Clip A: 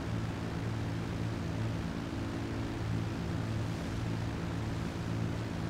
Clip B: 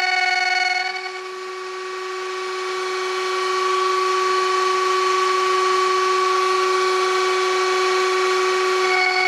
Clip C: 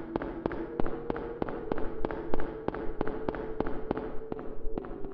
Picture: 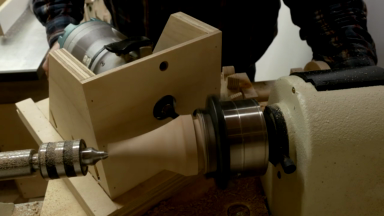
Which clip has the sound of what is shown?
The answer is B